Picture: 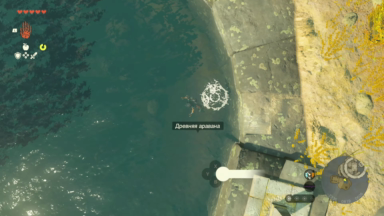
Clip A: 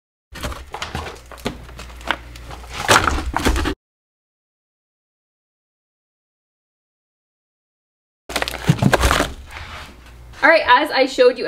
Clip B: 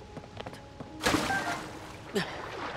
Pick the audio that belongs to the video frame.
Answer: B